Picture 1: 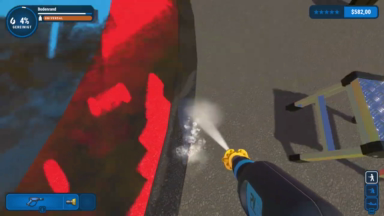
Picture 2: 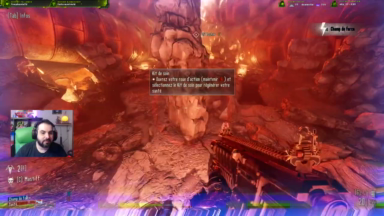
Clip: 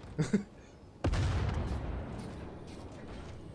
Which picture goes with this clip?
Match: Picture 2